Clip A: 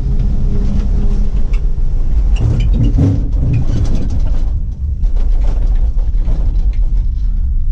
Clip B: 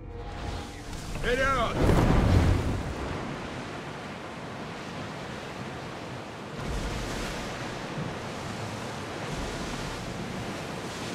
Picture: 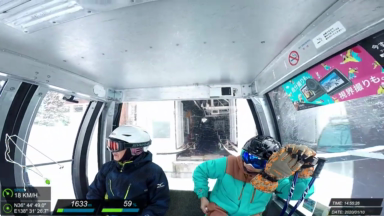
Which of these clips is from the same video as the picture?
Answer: A